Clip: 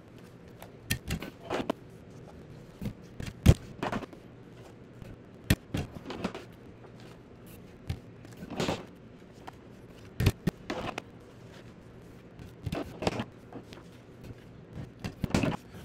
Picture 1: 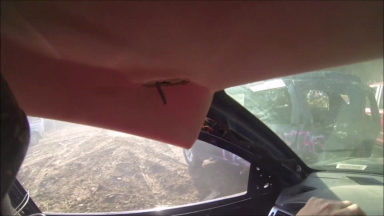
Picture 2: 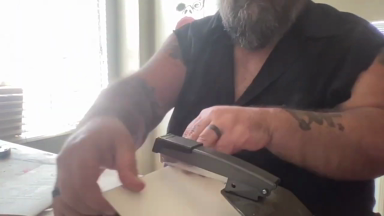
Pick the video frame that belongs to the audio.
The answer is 2